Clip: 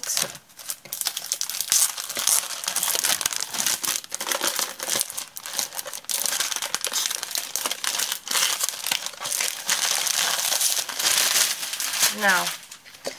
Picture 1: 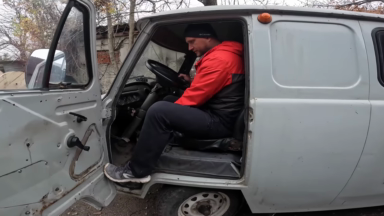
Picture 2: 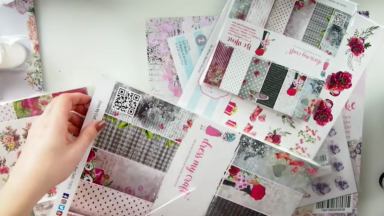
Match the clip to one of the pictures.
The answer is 2